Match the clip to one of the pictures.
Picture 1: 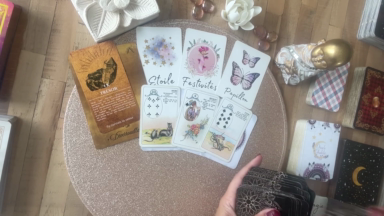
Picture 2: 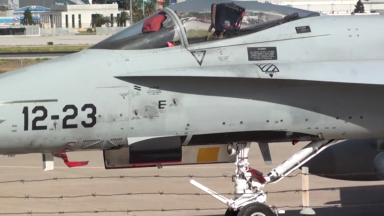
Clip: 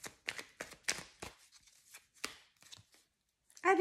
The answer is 1